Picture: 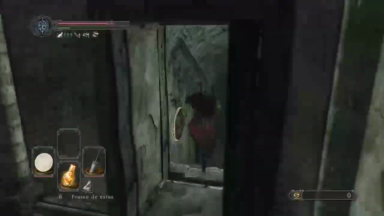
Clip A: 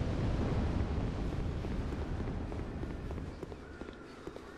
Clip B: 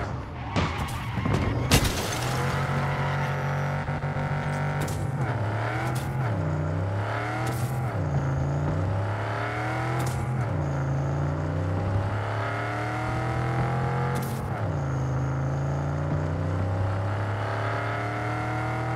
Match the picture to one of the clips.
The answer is A